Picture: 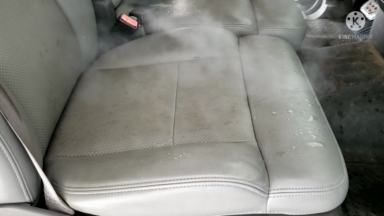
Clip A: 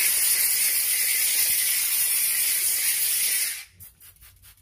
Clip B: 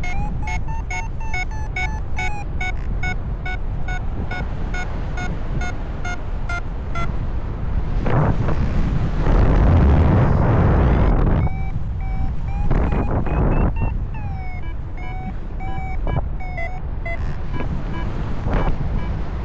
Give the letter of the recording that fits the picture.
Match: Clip A